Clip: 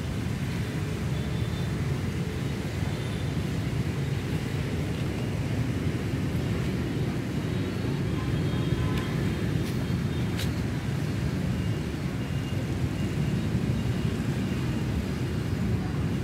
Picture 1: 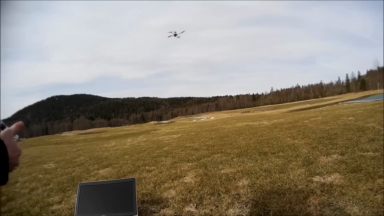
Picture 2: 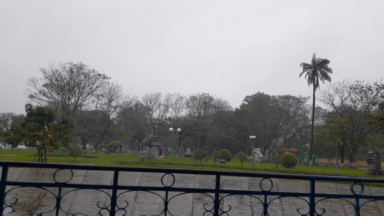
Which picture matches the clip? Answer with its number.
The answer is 2